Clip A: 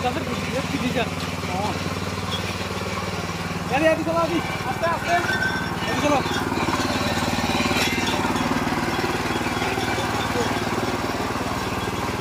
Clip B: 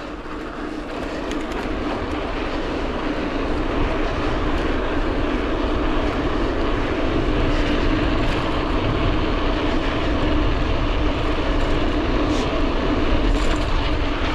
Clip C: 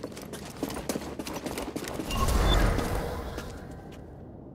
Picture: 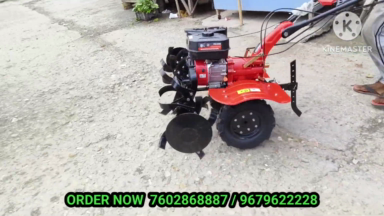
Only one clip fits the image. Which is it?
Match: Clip A